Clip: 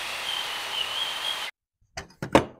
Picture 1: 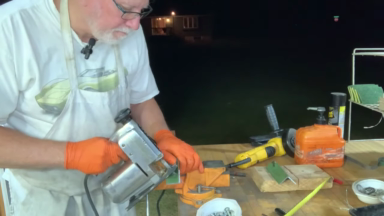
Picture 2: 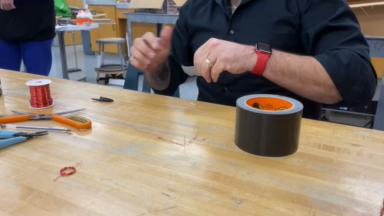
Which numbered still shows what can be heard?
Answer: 1